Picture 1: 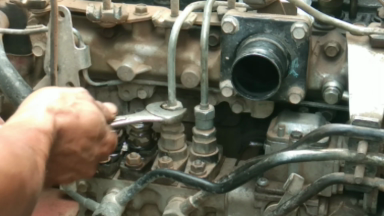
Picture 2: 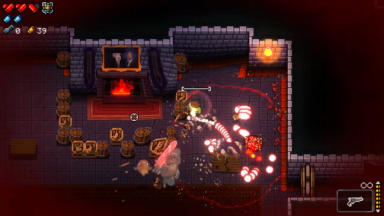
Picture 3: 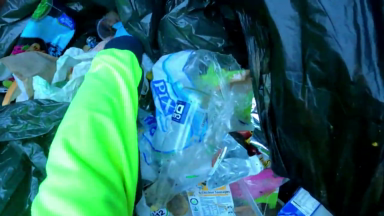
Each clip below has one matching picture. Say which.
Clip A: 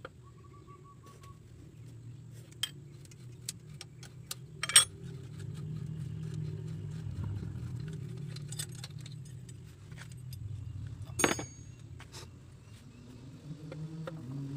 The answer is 1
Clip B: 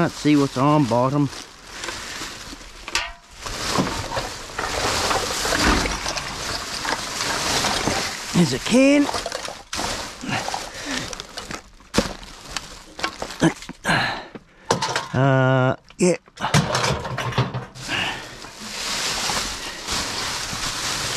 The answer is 3